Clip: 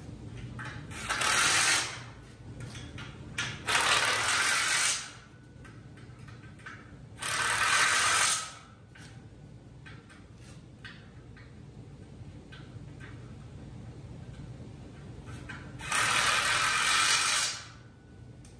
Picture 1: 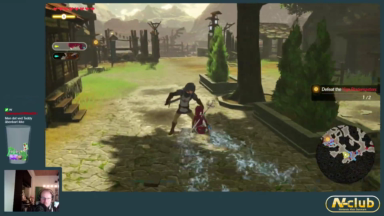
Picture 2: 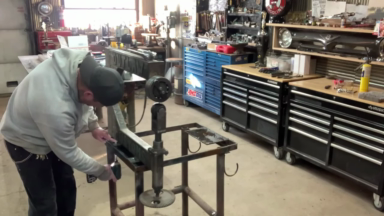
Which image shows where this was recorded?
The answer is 2